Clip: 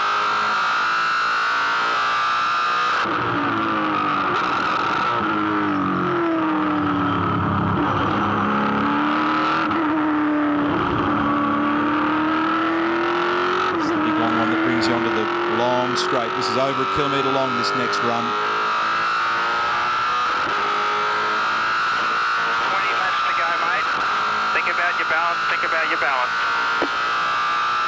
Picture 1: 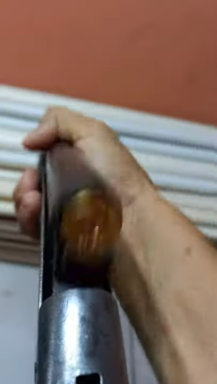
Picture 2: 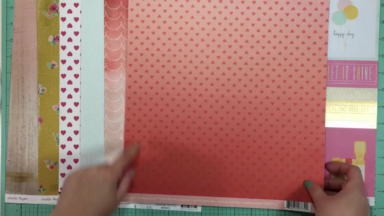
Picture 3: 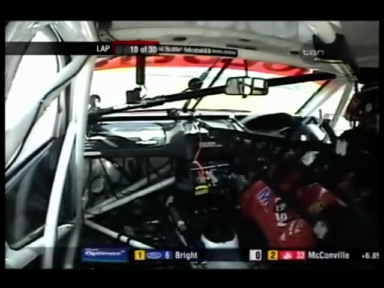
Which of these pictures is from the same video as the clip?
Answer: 3